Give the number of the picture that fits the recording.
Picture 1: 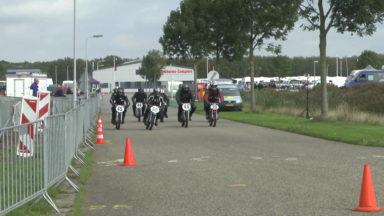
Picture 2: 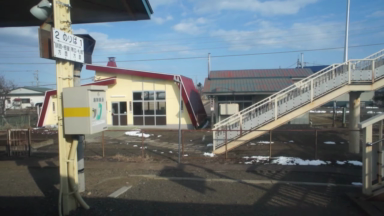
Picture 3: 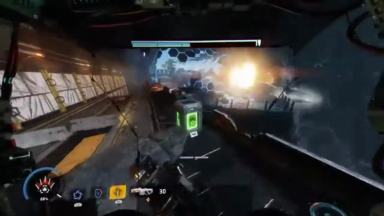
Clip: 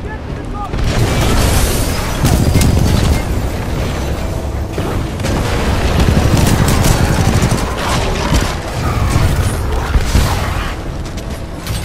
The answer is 3